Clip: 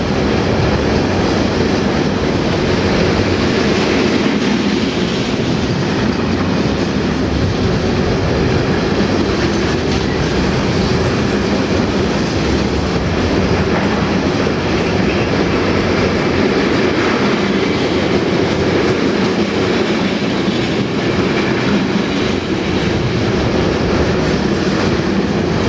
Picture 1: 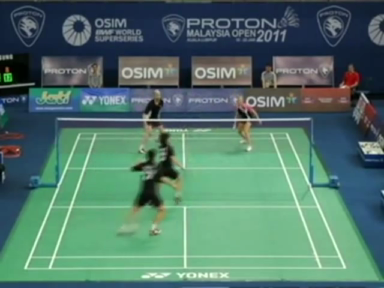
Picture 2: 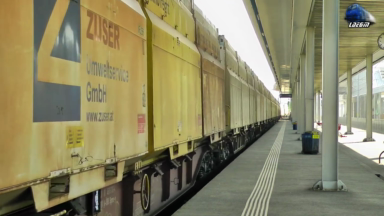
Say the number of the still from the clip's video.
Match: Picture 2